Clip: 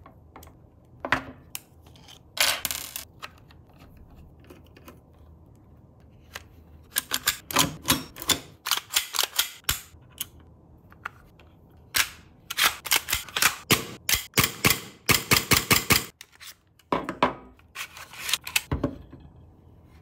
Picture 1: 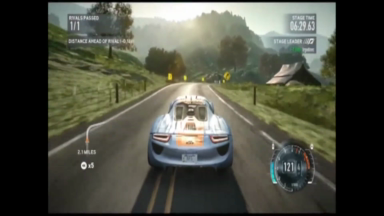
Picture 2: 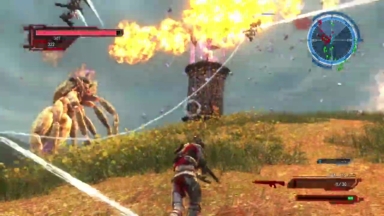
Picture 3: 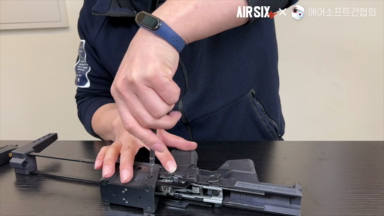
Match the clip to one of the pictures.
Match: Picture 3